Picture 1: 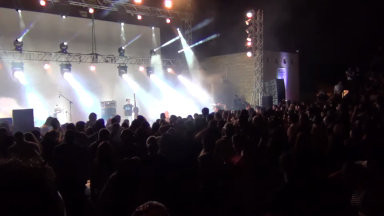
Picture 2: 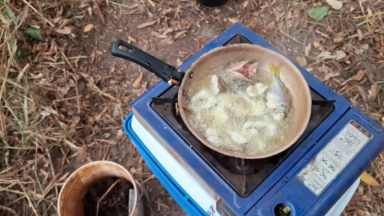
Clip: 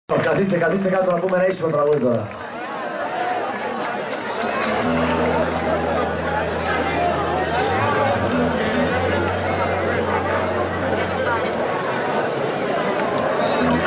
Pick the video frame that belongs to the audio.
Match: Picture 1